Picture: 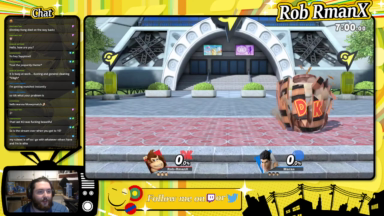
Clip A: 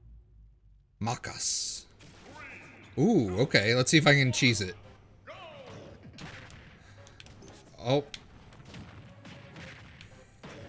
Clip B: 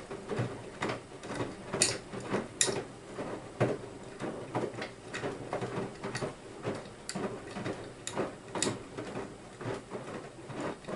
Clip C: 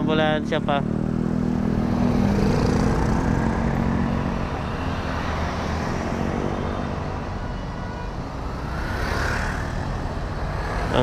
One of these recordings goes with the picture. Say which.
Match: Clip A